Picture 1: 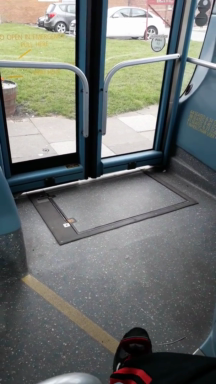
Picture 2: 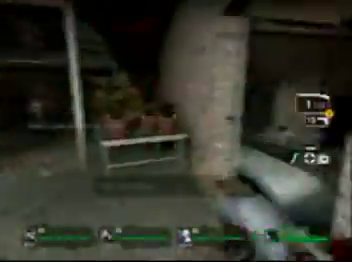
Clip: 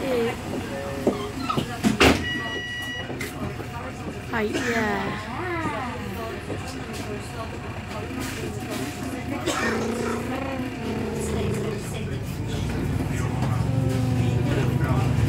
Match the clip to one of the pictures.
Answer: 1